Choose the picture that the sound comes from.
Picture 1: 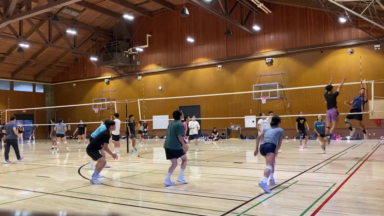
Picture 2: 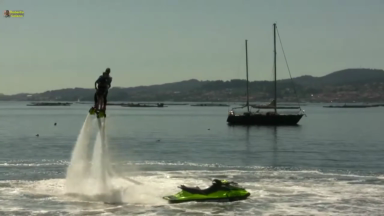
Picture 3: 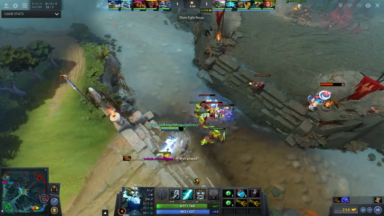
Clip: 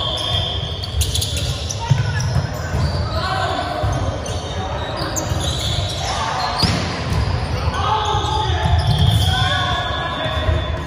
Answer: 1